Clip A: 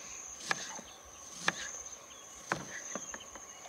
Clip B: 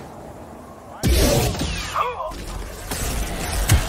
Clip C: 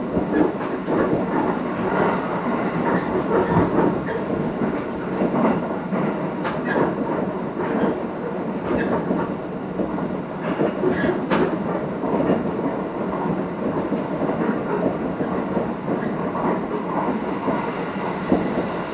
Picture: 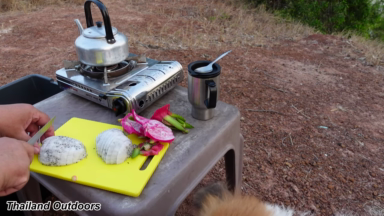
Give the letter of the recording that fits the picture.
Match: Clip A